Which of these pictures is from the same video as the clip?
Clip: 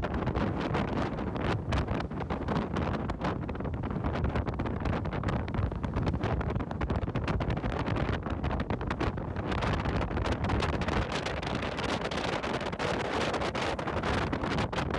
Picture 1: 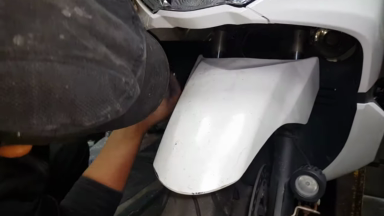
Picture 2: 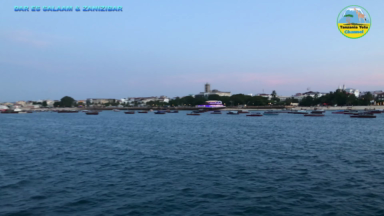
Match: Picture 2